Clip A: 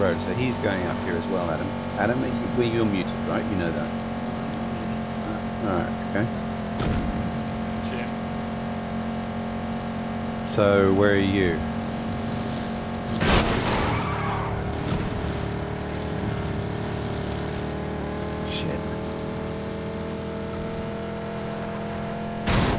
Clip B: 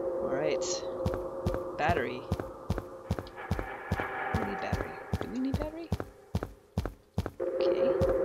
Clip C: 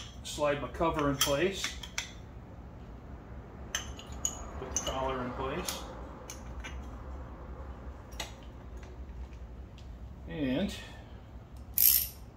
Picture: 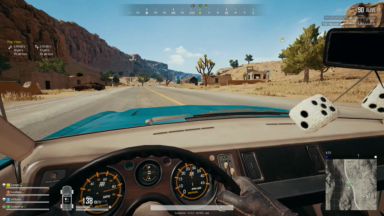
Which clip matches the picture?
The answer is A